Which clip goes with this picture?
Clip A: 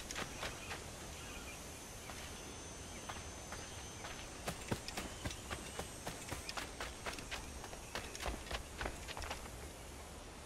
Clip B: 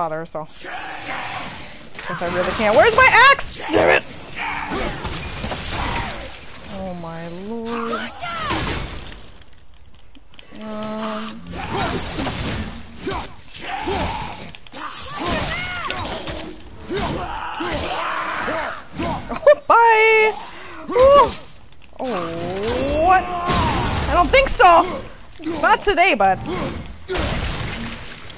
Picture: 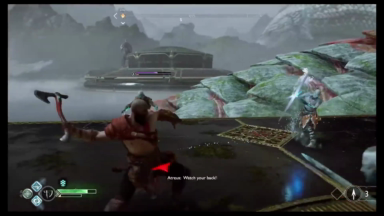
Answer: B